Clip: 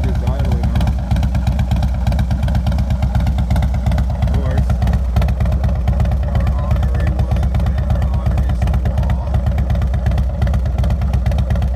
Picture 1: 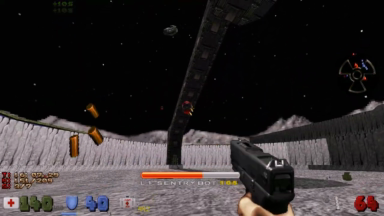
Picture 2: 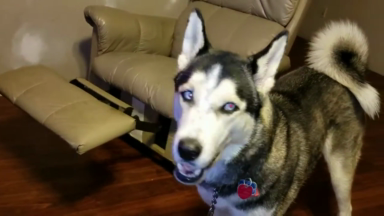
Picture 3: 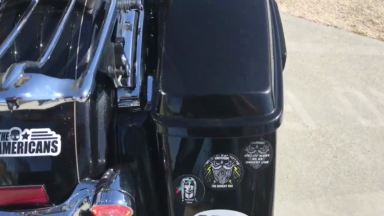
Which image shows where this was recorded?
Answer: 3